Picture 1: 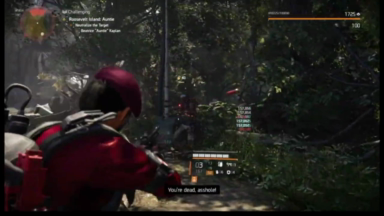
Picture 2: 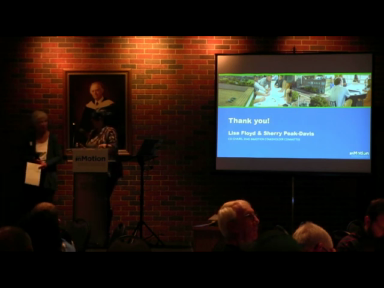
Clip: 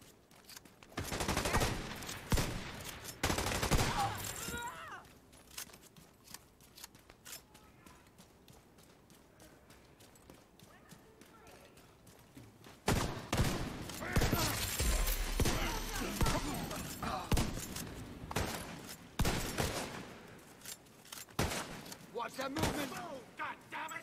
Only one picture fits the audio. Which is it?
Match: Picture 1